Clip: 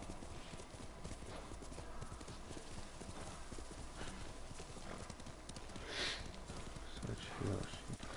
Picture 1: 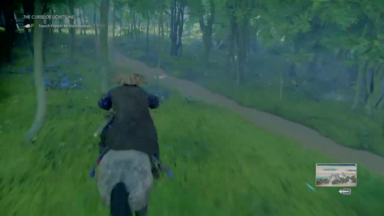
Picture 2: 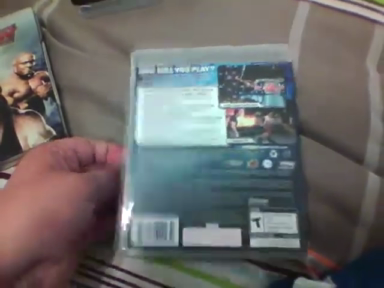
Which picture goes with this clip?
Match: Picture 1